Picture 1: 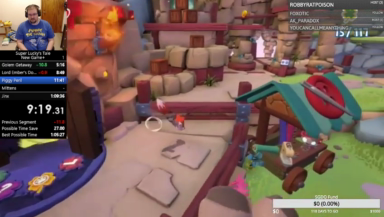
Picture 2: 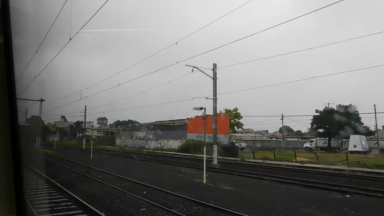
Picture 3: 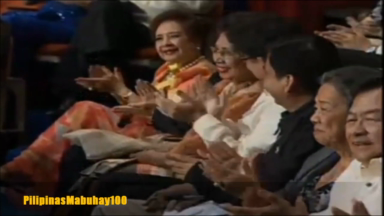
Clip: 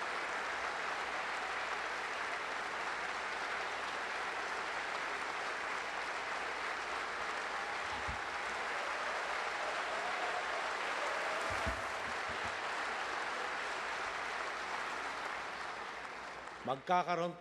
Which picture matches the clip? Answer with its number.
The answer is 3